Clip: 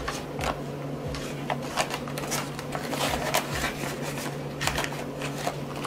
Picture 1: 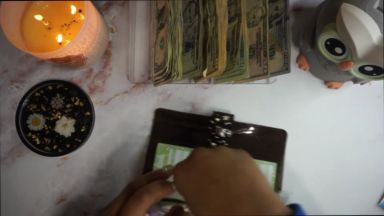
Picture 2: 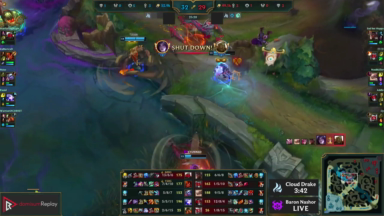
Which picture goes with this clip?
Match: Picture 1